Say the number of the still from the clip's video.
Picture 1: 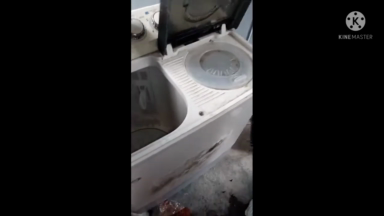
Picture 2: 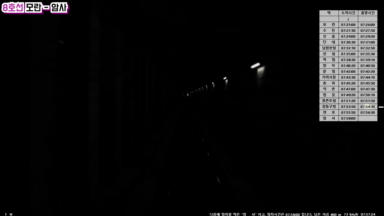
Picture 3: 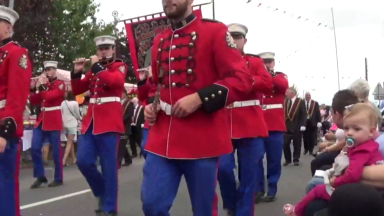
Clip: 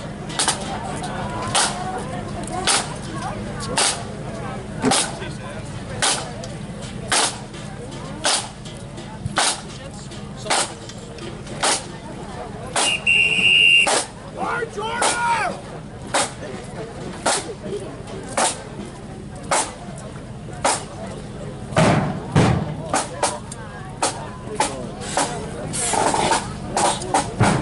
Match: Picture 3